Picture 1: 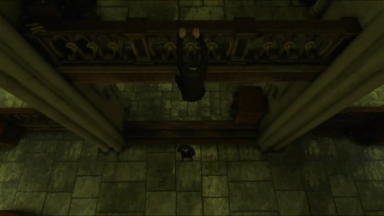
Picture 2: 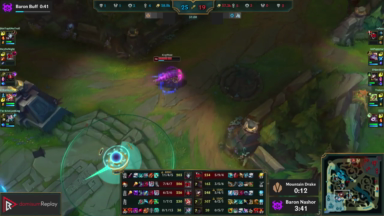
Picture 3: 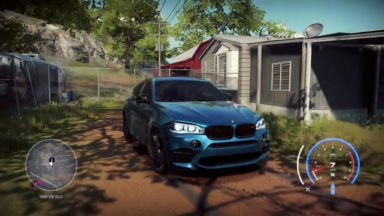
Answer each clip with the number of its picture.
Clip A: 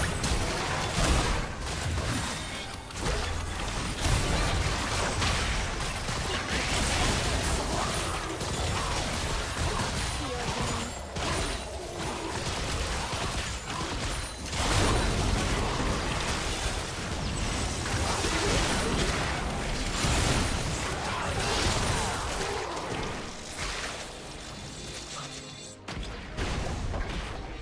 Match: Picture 2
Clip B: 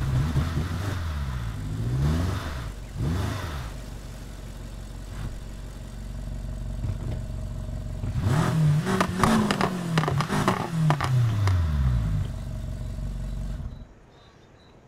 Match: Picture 3